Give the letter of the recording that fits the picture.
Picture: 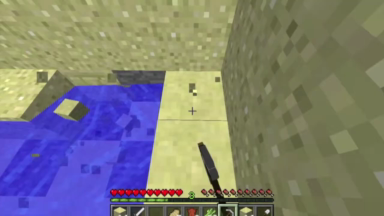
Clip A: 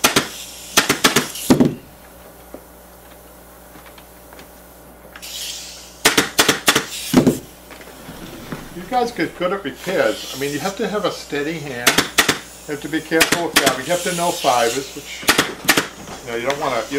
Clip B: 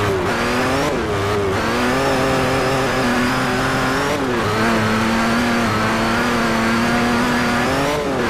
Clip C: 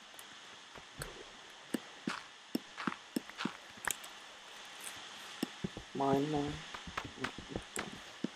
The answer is C